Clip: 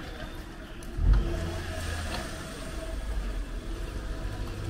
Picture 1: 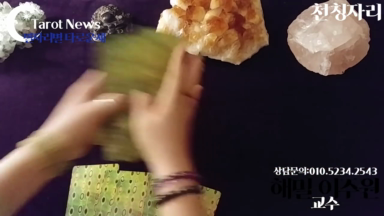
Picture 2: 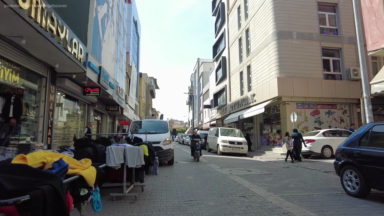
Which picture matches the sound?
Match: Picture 2